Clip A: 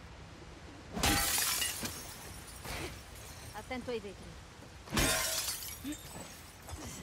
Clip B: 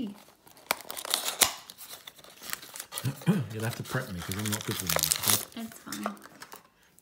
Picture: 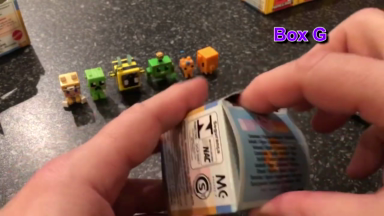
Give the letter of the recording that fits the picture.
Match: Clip B